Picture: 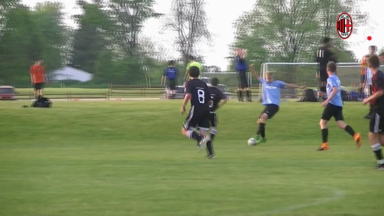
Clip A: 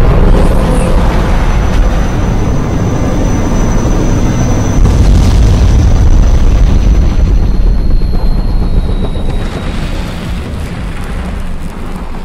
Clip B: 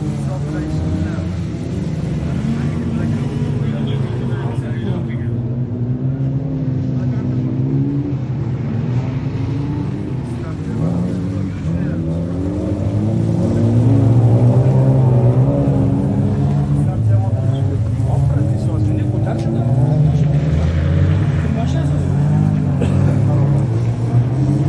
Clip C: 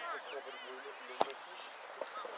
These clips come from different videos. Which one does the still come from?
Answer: C